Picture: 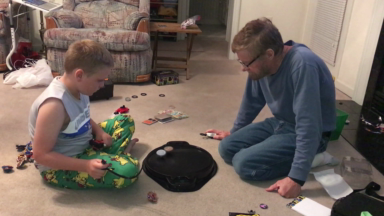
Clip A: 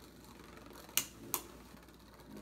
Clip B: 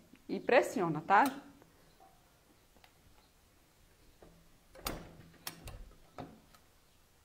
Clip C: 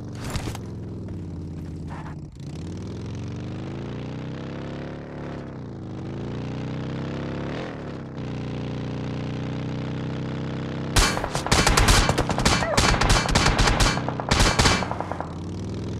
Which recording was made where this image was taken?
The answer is A